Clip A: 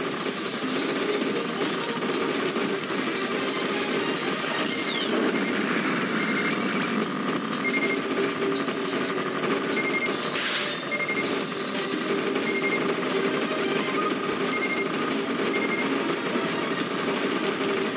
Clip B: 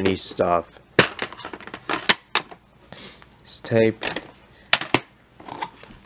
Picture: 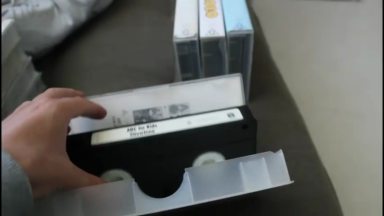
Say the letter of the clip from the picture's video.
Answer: B